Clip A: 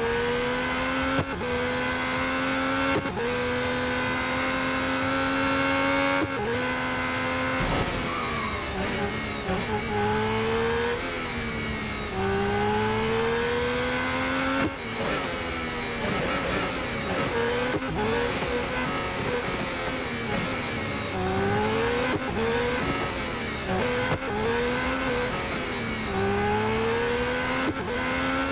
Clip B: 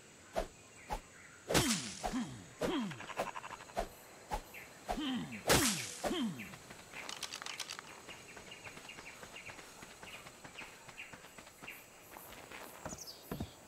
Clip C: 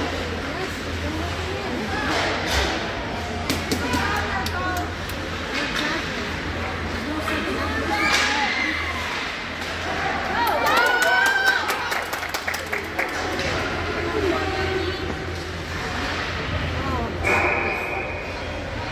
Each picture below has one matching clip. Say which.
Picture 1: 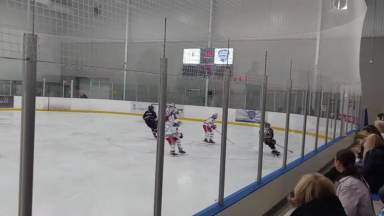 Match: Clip C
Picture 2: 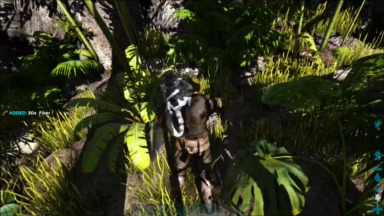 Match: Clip B